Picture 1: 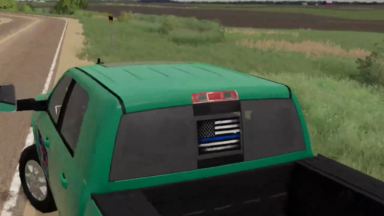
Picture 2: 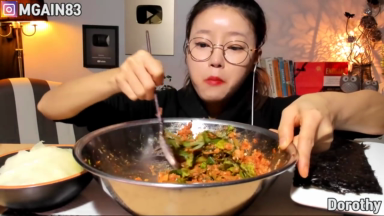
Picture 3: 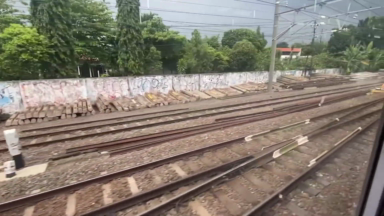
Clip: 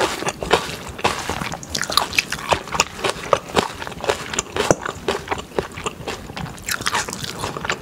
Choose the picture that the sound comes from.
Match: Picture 2